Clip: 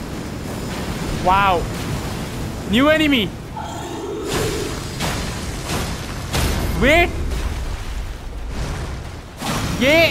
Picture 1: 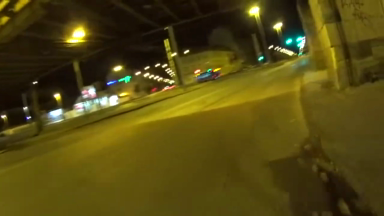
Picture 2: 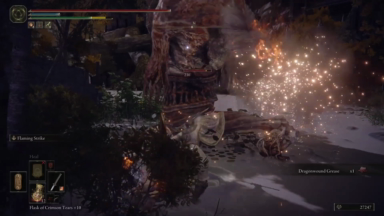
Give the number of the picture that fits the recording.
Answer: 2